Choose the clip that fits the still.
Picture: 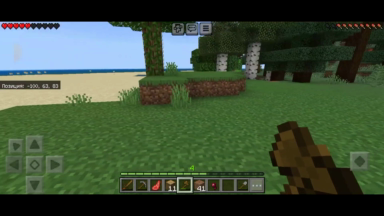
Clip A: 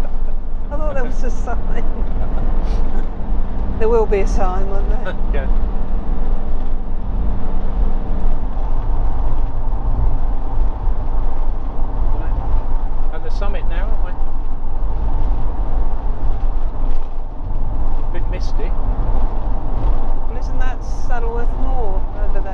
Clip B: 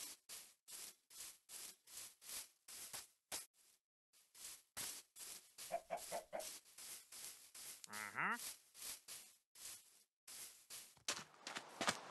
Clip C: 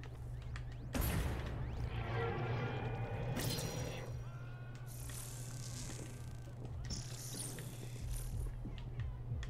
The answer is B